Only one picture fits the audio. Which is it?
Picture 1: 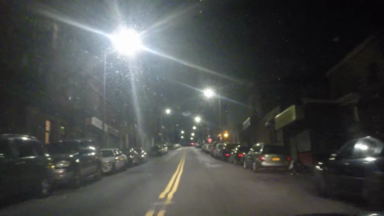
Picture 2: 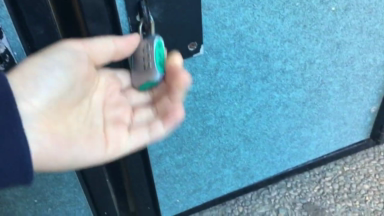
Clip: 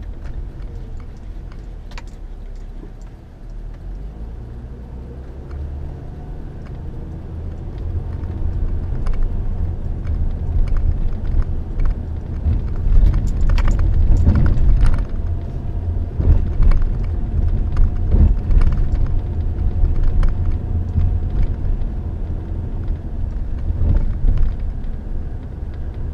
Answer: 1